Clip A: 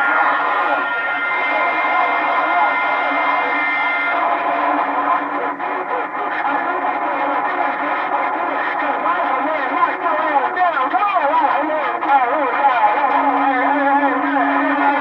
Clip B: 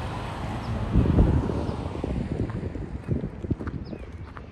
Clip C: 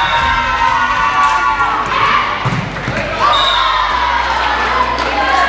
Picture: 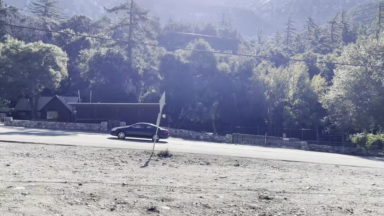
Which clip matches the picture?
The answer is B